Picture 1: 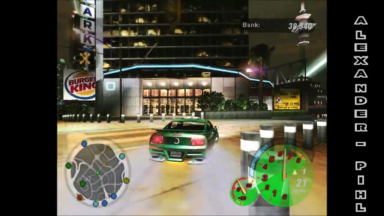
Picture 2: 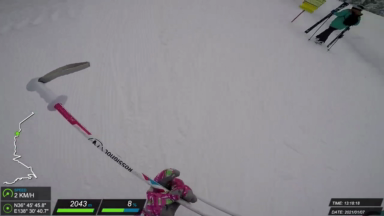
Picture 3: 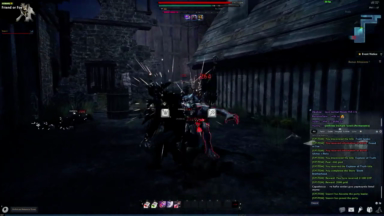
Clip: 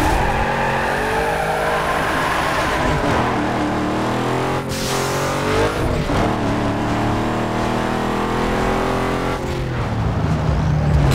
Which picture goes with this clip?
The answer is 1